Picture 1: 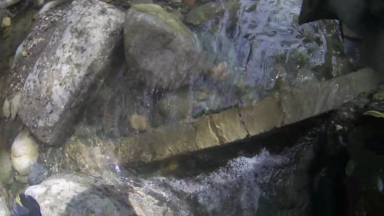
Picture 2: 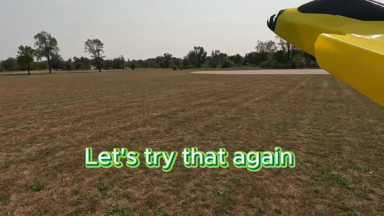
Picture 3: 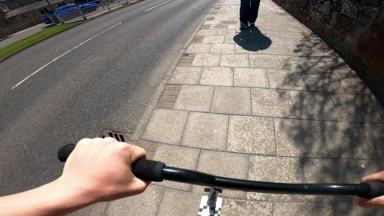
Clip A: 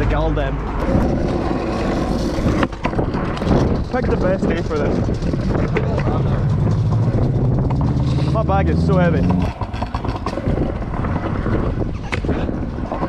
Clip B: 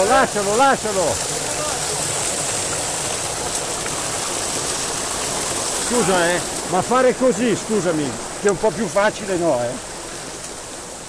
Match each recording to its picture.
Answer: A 3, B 1